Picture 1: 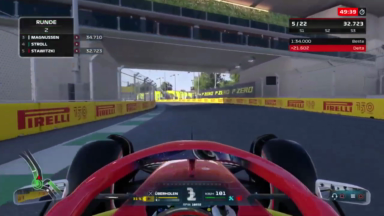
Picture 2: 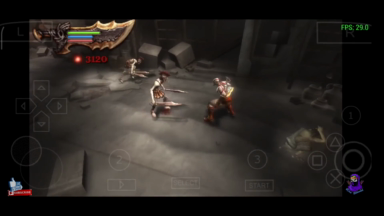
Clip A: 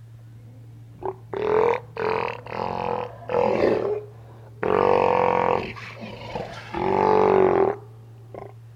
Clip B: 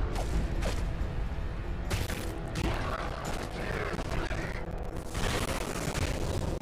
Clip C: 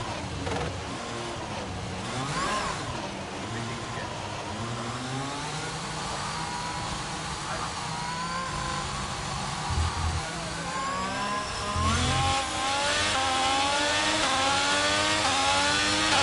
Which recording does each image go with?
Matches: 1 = C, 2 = B